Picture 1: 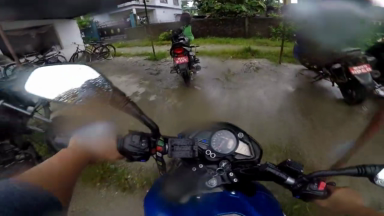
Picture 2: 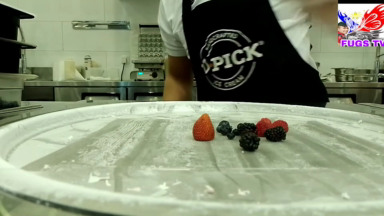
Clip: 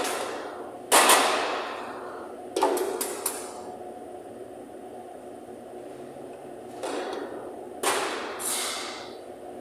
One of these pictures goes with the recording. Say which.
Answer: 2